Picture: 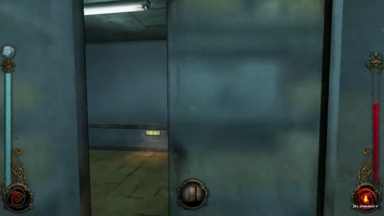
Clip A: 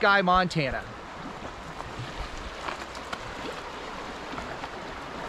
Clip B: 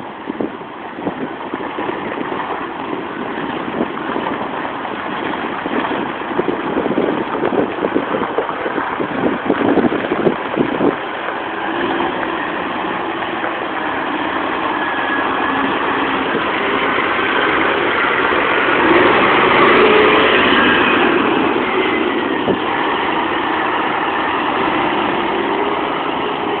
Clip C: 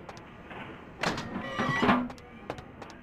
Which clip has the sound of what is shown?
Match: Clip C